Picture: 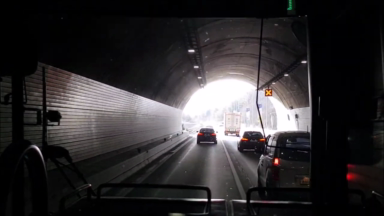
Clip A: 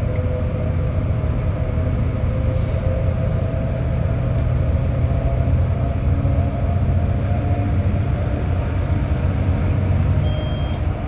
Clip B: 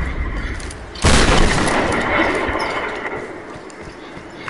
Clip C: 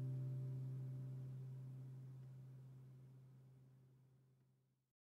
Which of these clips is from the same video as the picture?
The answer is A